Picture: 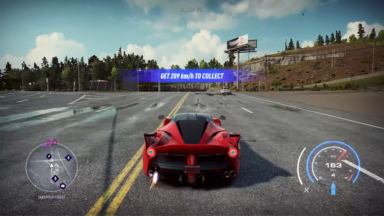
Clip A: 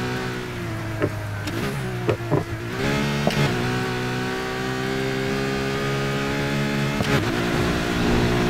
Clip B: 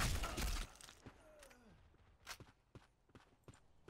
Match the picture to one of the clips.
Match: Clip A